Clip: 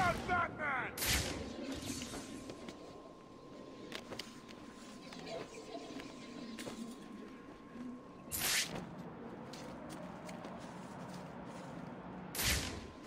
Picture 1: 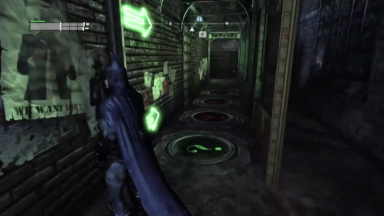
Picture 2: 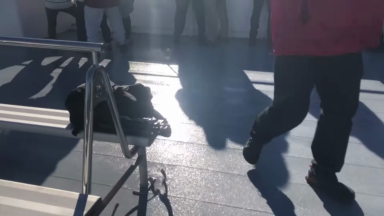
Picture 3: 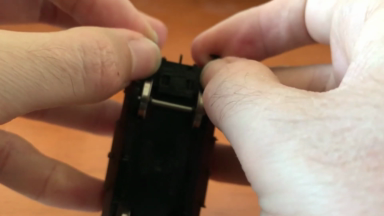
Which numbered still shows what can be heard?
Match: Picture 1